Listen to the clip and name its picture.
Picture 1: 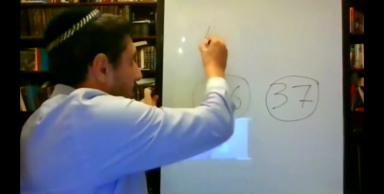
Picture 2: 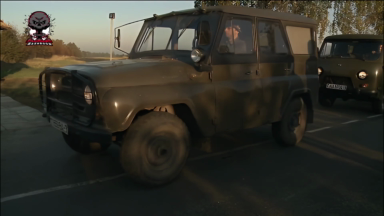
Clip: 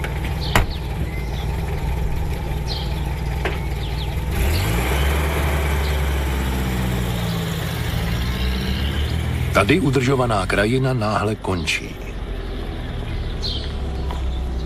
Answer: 2